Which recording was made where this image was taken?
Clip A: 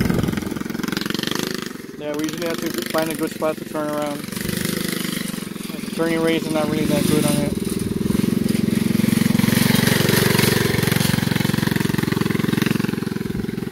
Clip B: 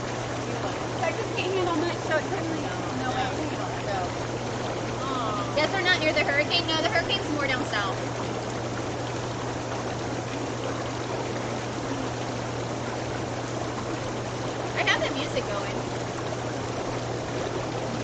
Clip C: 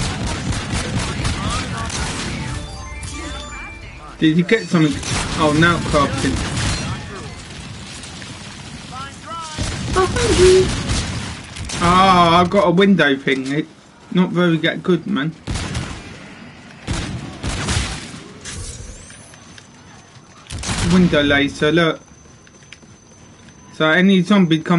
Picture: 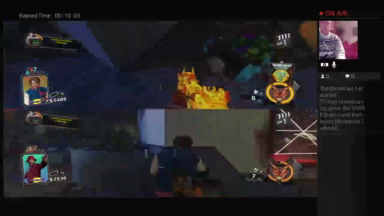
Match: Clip C